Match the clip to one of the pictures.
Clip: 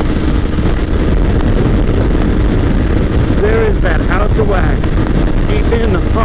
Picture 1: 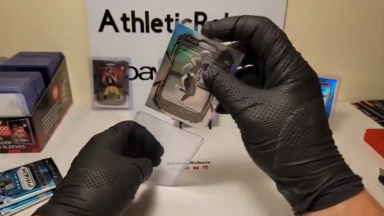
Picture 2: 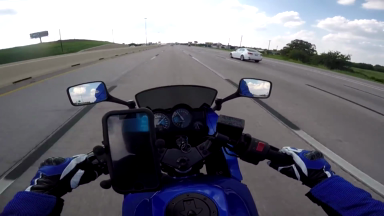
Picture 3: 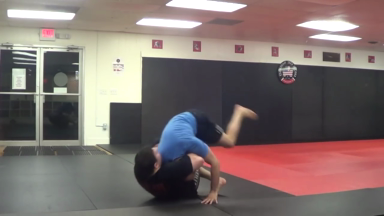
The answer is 2